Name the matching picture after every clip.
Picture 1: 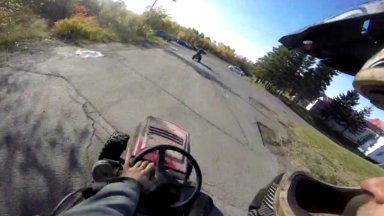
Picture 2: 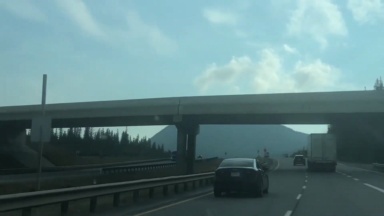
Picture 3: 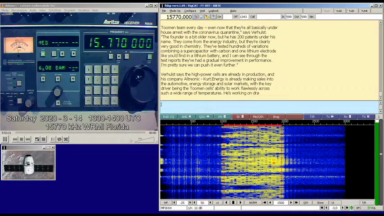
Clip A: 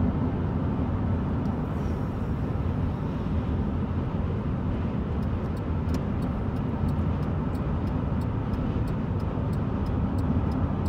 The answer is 2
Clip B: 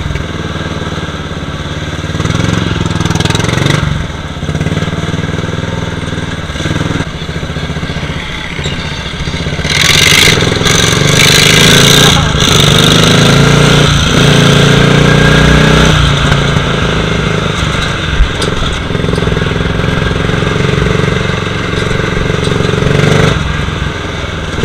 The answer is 1